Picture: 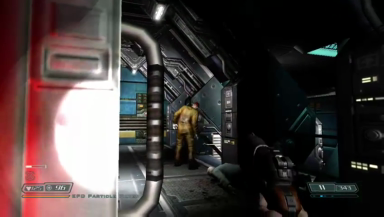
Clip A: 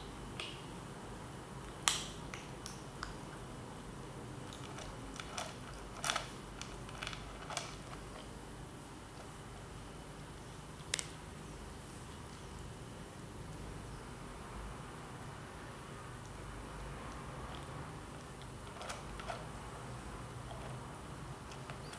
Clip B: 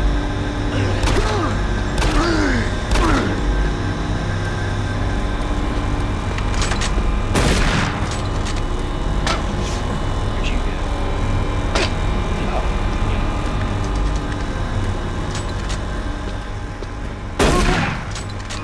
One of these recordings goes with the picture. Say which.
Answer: B